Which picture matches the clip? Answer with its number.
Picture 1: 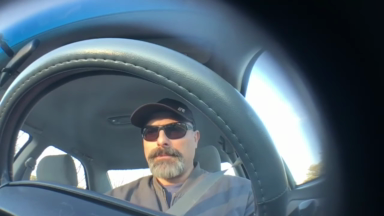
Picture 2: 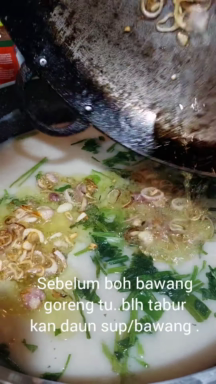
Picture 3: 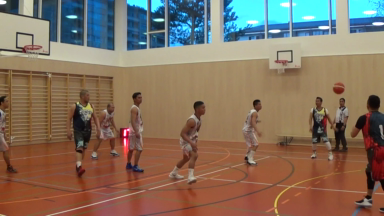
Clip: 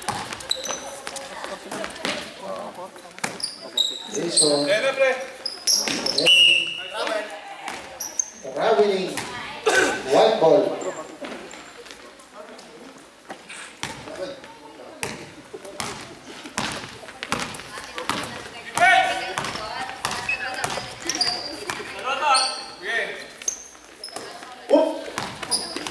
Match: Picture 3